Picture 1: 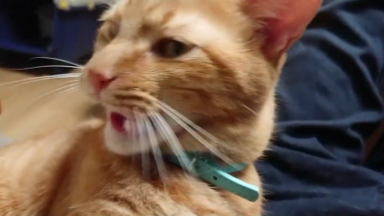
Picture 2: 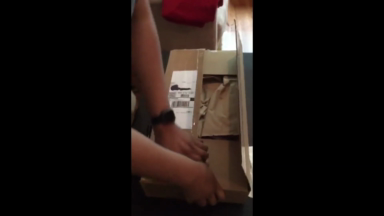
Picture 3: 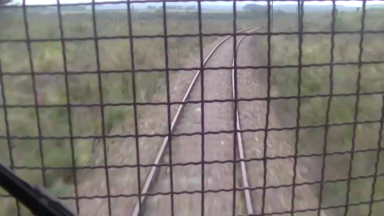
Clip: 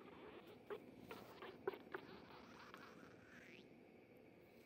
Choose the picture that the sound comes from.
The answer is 1